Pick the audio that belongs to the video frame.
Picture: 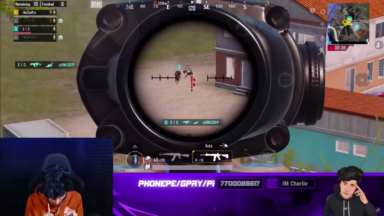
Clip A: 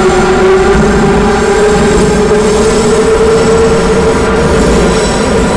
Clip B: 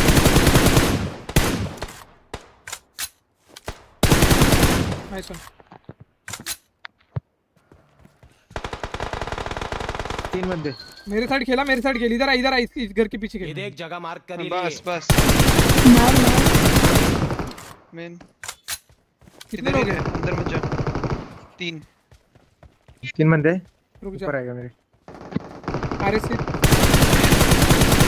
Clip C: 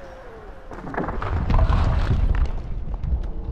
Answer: B